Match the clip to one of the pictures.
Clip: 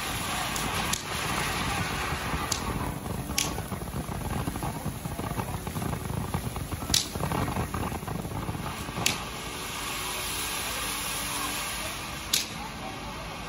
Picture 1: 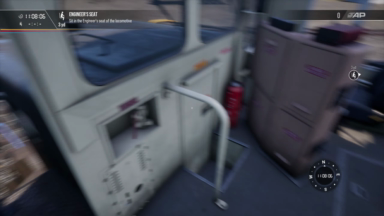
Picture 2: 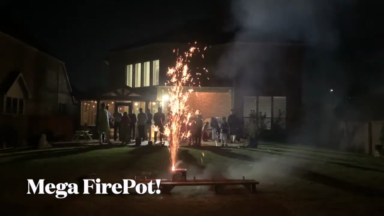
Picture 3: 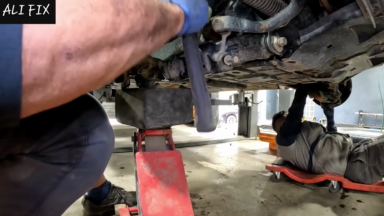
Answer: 2